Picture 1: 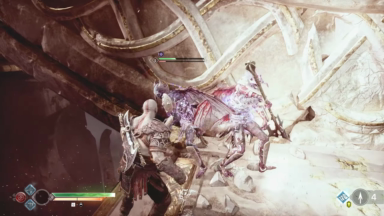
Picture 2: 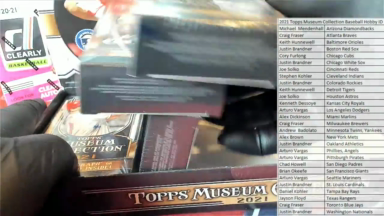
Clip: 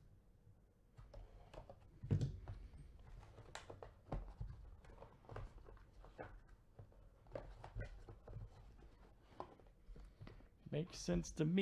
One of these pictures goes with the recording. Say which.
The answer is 2